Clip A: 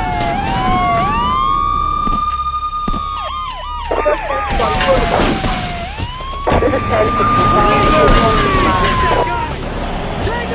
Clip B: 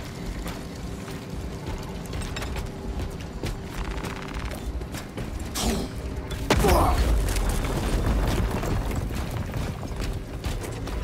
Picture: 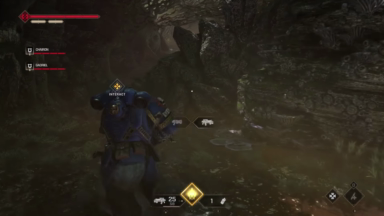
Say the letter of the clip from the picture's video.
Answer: B